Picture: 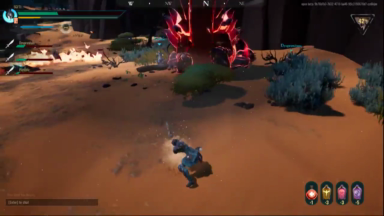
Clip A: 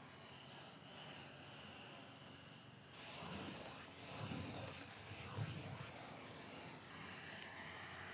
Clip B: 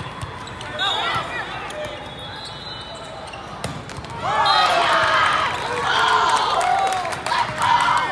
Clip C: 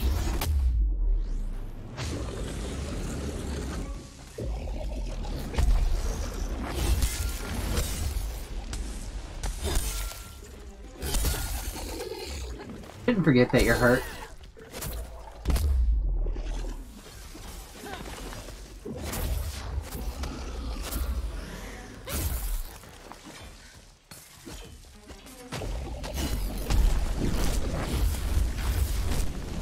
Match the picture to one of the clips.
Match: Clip C